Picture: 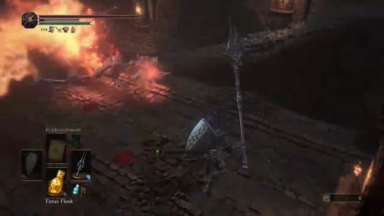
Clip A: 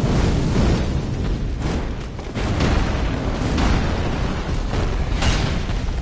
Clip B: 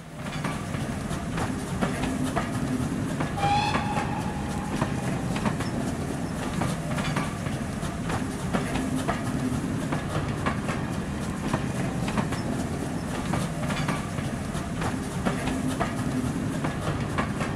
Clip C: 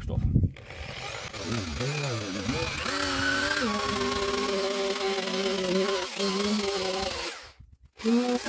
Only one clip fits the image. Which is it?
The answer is A